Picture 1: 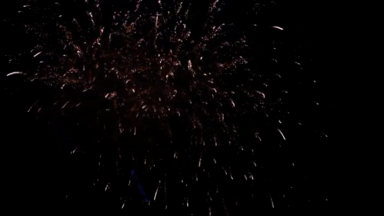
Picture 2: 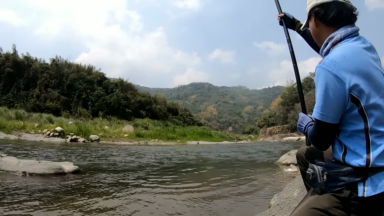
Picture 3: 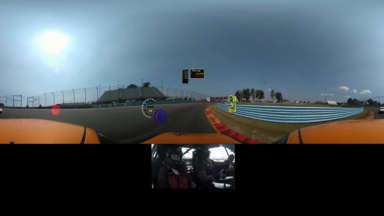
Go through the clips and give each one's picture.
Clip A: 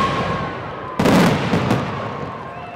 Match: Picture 1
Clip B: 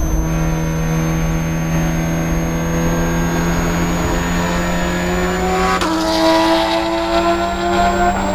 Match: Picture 3